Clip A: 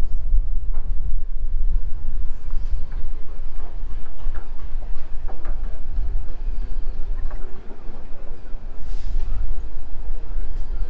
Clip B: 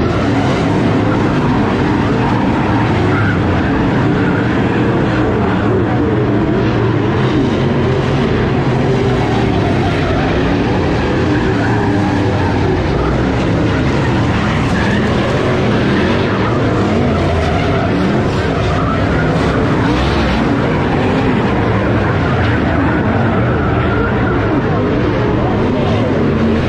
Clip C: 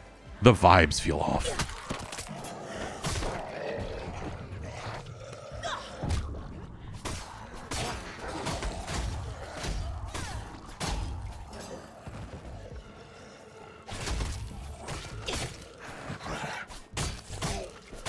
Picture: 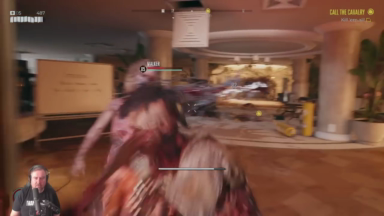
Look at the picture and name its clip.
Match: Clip C